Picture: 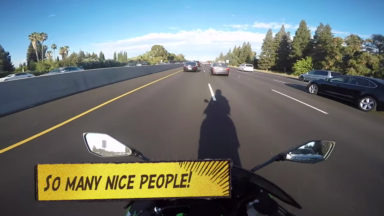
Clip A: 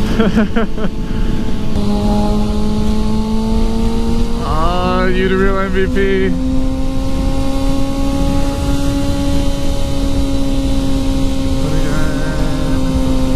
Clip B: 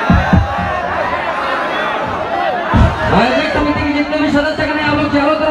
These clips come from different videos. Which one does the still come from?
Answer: A